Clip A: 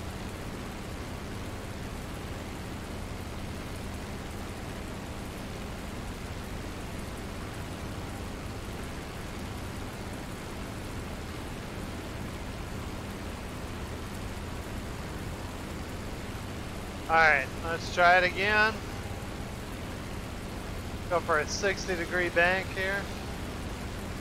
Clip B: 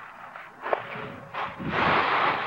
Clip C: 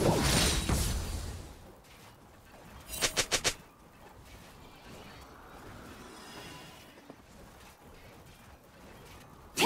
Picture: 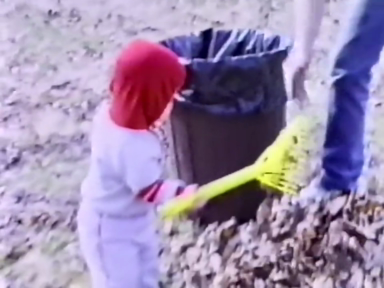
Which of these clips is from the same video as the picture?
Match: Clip B